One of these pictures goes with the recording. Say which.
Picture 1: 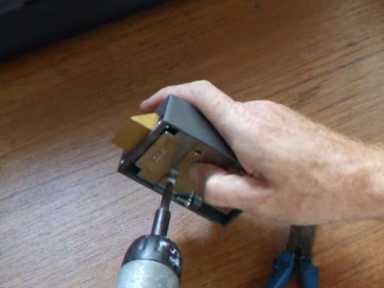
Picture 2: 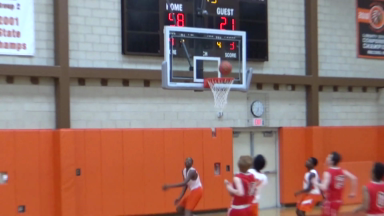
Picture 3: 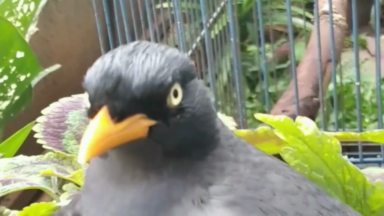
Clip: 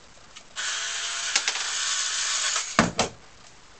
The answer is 1